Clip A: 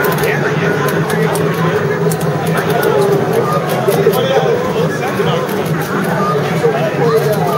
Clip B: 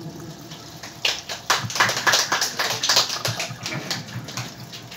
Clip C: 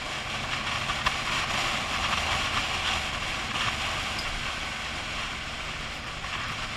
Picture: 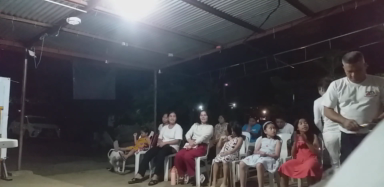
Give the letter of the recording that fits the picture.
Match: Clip B